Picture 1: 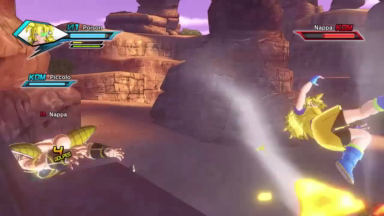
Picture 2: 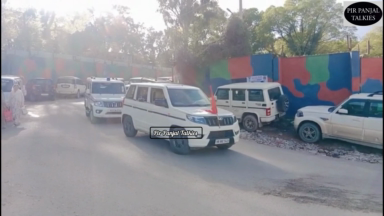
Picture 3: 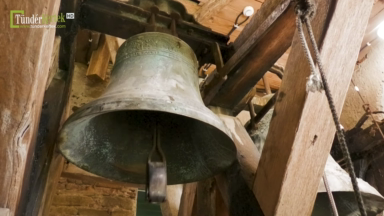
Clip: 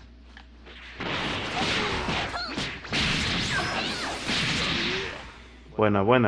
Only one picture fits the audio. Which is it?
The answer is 1